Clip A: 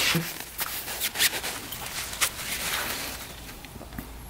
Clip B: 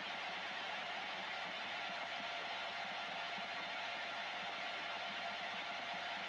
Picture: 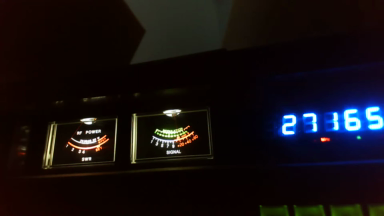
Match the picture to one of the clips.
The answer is B